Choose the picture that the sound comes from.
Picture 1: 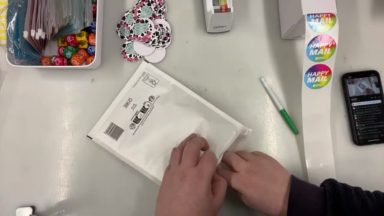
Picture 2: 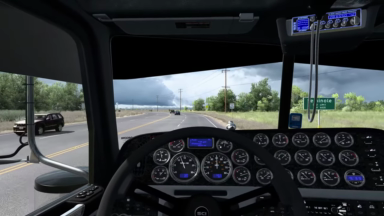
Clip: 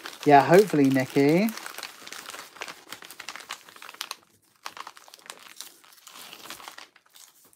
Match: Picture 1